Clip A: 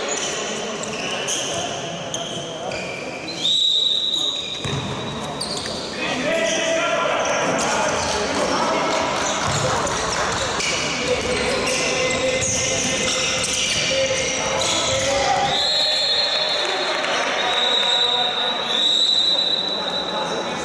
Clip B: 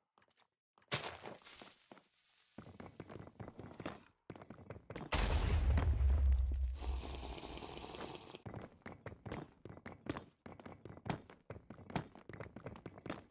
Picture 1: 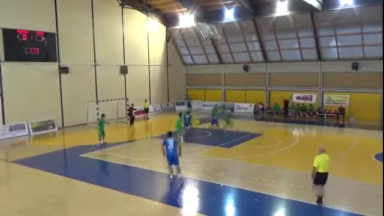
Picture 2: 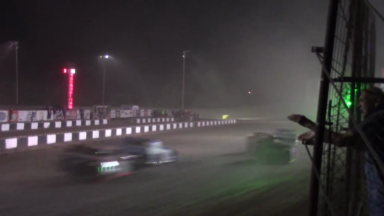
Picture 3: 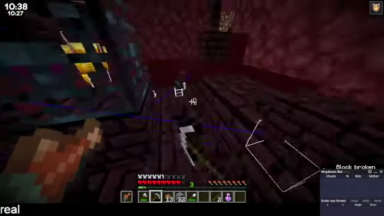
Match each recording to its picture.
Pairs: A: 1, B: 3